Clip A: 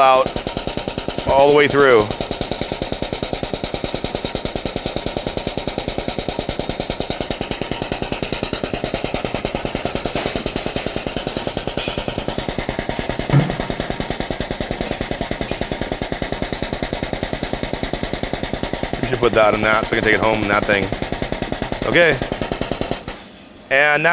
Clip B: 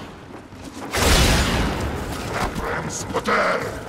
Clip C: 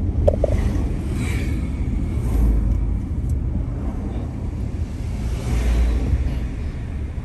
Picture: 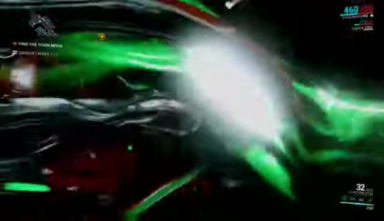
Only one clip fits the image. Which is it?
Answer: B